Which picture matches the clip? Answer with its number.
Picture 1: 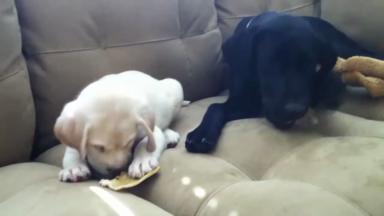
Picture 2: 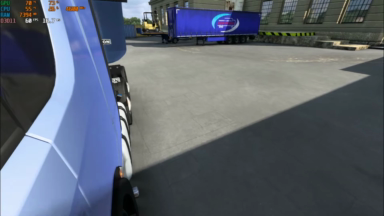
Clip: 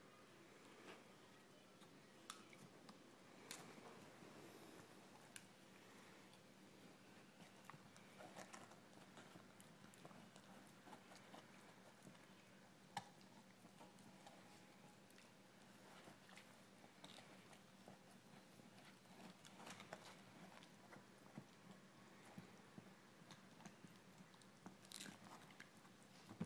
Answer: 1